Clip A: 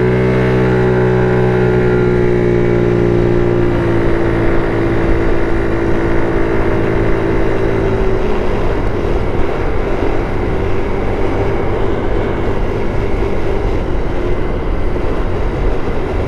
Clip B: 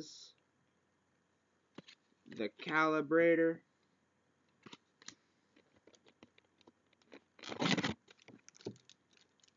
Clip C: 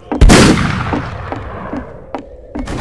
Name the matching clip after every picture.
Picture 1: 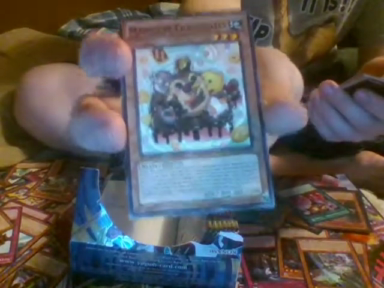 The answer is B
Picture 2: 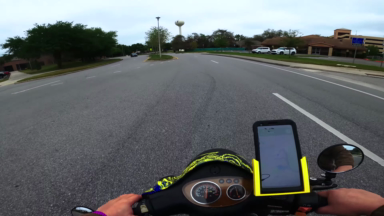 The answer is A